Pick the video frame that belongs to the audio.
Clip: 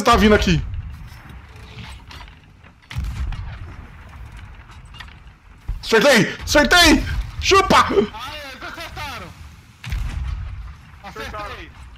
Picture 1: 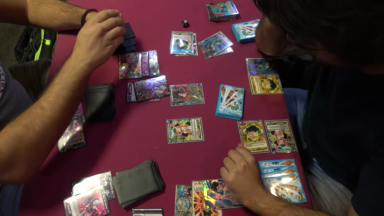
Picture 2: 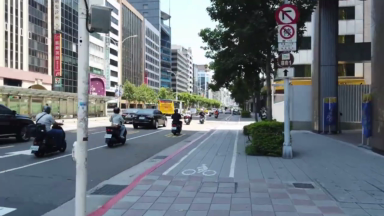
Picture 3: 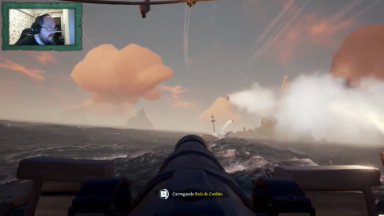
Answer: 3